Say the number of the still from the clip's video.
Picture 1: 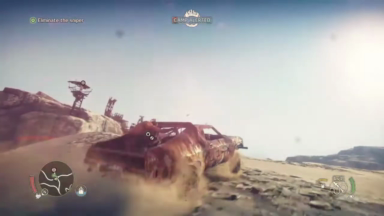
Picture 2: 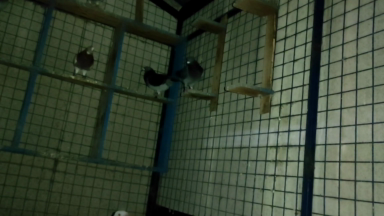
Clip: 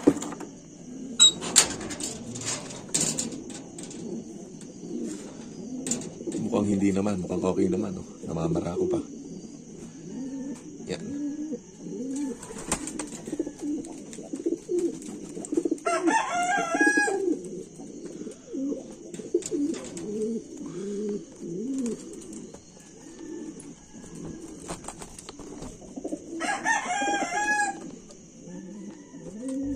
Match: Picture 2